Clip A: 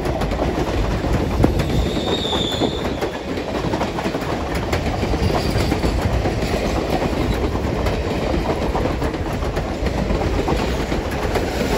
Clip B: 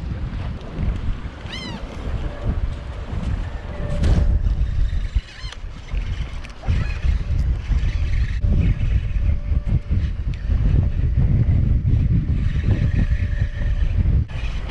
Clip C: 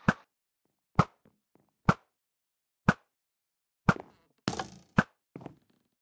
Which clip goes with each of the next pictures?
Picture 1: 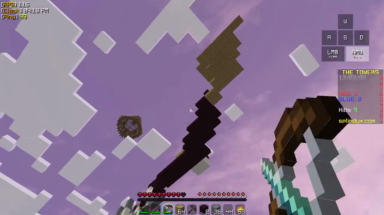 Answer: C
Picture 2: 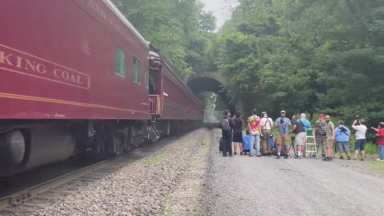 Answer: A